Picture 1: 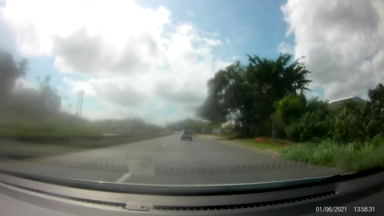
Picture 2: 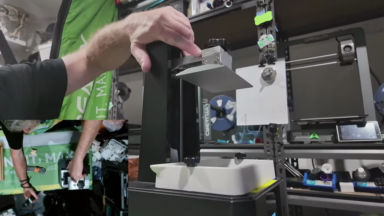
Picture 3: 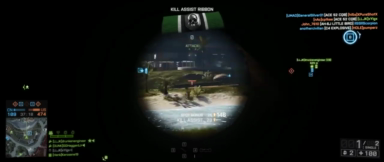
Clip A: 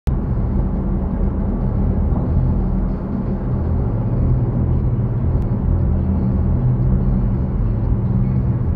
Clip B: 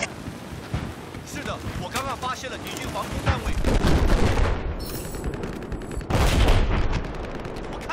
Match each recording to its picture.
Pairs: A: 1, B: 3